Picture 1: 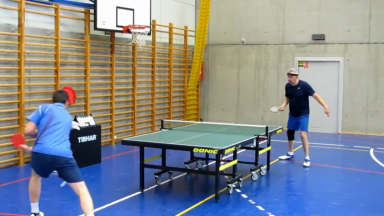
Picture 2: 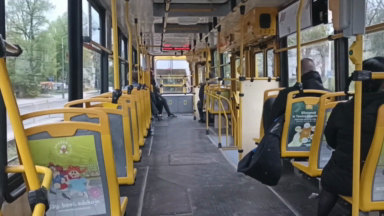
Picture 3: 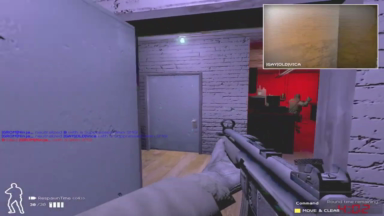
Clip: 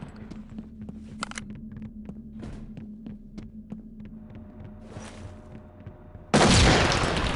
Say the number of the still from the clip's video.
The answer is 3